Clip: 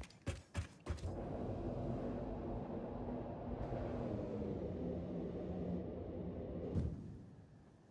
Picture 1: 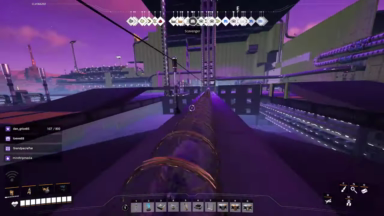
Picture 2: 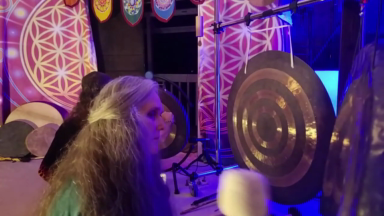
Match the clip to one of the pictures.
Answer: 1